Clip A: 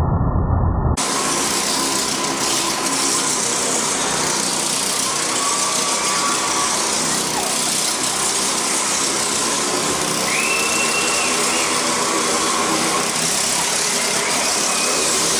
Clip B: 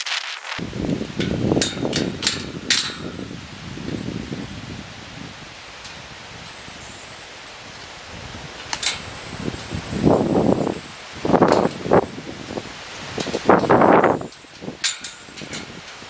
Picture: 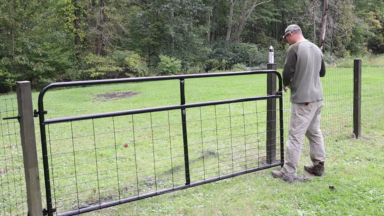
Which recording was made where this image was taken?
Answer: B